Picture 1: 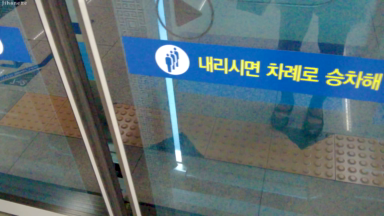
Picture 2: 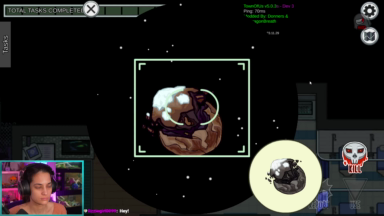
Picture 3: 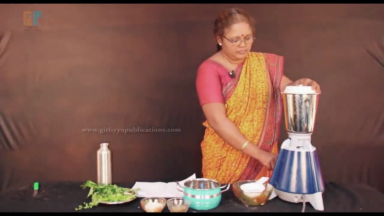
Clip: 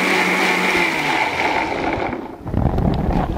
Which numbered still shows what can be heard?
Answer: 3